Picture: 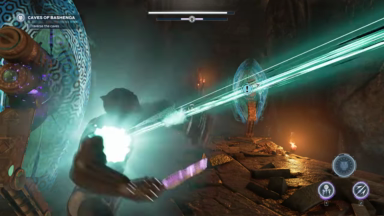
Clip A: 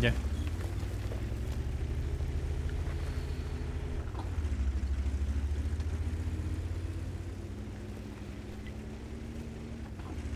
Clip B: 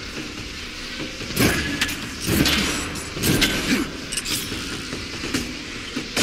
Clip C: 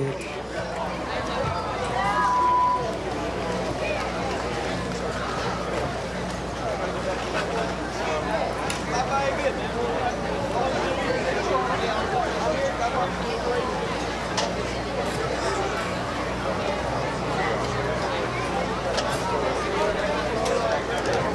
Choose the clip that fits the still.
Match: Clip B